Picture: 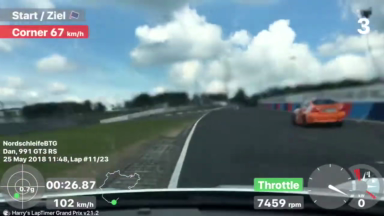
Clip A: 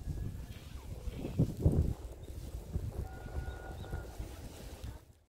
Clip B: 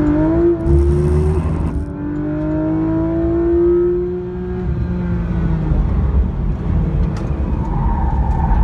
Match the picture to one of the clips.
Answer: B